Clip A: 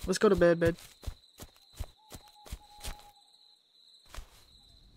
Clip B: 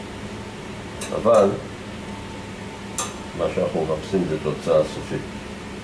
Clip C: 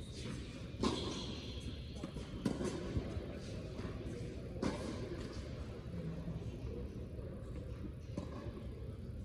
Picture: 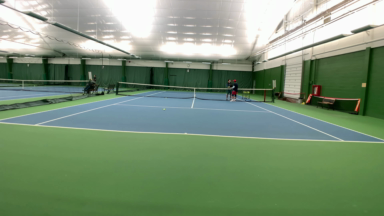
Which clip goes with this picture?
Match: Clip C